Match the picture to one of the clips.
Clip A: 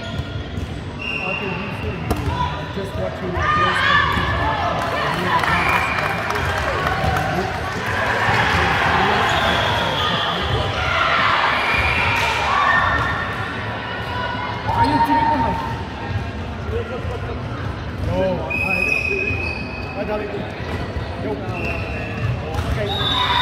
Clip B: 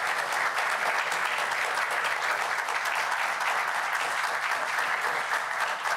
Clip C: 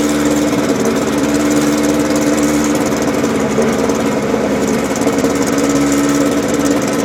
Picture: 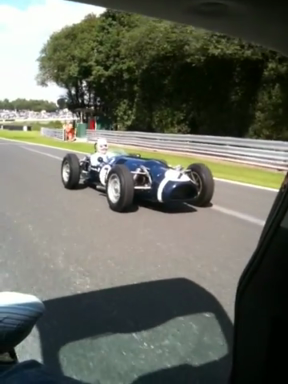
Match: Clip C